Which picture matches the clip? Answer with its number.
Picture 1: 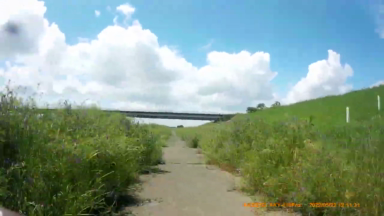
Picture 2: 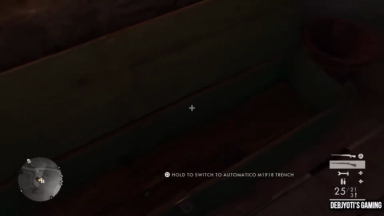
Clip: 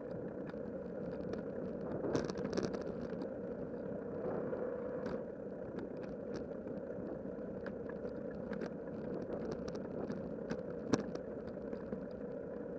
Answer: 1